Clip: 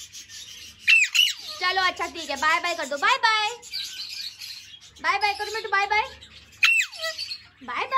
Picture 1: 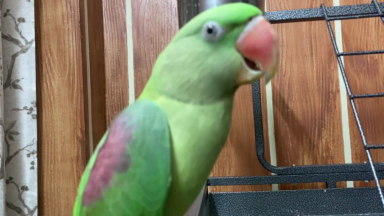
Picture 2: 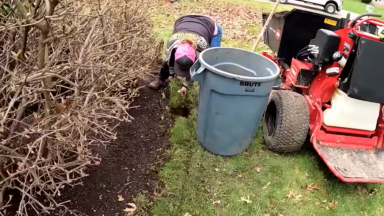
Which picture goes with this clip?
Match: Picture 1